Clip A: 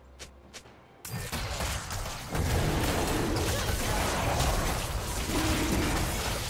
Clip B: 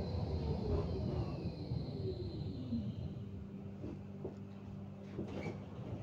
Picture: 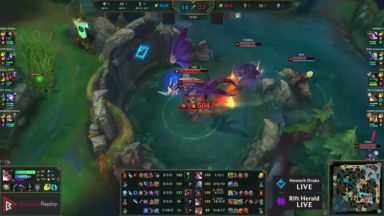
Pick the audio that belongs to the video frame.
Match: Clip A